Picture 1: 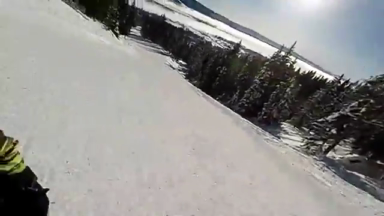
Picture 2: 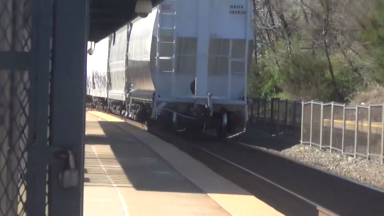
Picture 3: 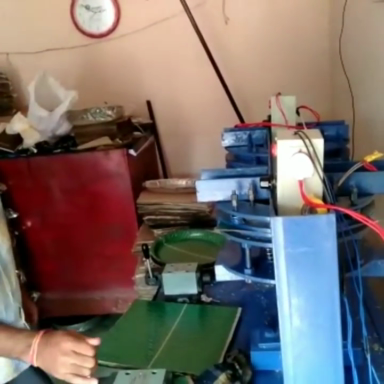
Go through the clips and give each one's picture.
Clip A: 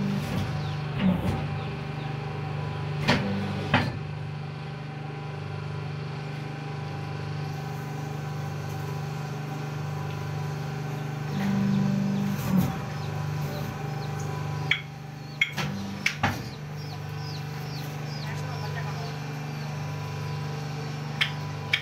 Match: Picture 3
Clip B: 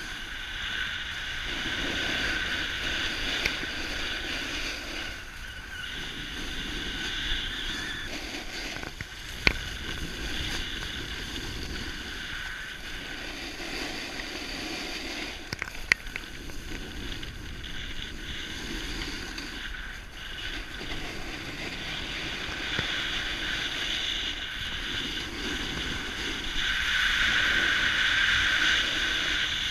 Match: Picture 1